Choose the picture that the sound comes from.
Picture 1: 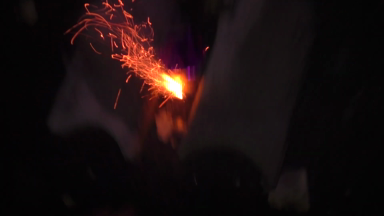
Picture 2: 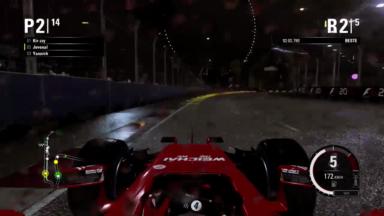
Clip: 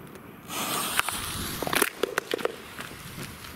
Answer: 1